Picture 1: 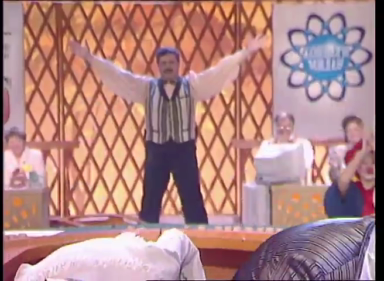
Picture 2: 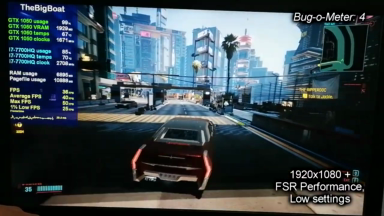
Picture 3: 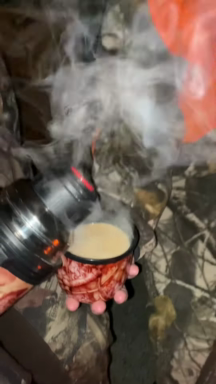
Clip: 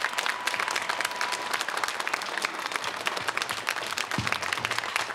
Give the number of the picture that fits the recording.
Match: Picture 1